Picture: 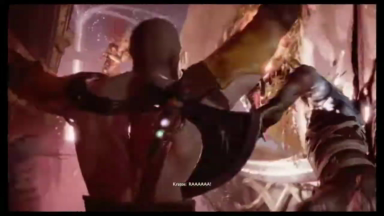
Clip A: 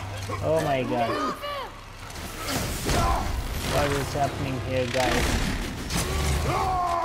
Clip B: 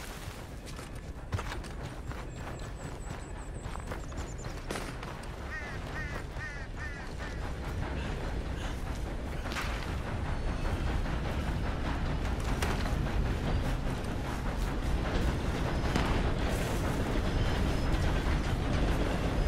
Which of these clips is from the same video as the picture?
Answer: A